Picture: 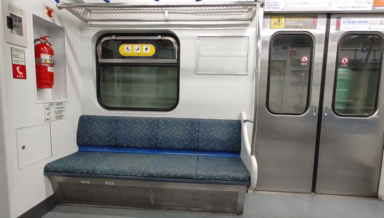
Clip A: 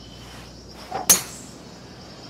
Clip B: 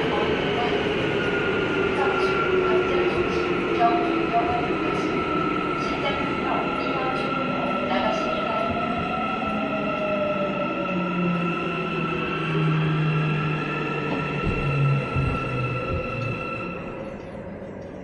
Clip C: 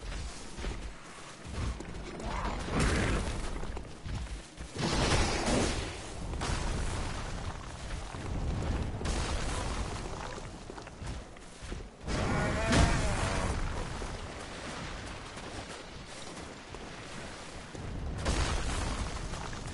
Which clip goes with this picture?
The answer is B